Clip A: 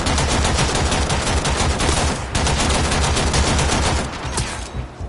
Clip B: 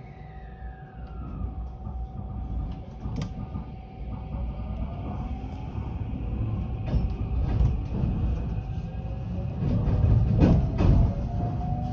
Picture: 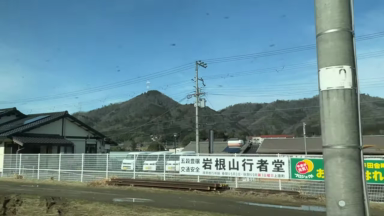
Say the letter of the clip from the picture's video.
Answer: B